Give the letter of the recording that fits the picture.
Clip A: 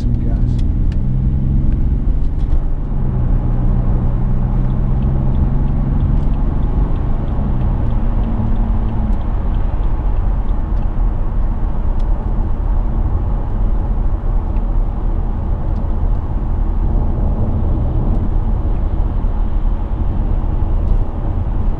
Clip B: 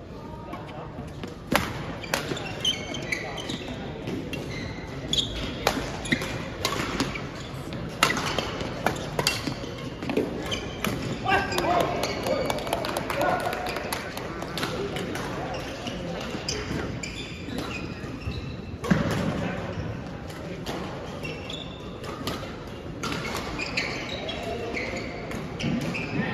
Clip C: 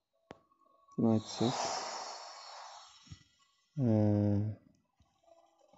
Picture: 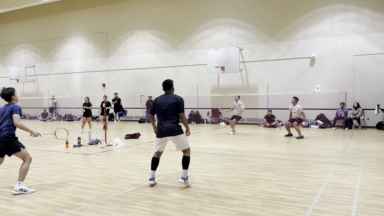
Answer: B